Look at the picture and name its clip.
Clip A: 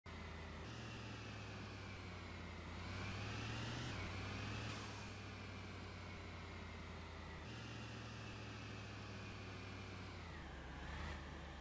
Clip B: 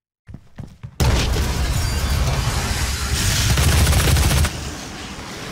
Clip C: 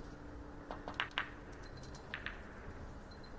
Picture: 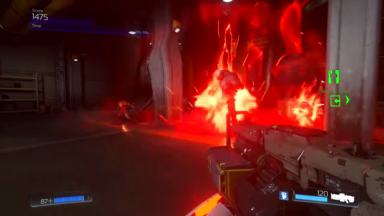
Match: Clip B